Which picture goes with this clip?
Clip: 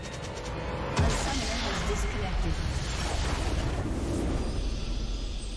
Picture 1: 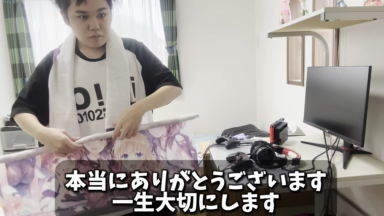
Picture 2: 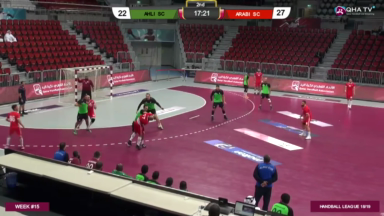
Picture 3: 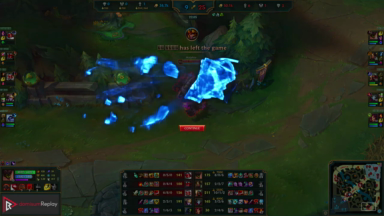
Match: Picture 3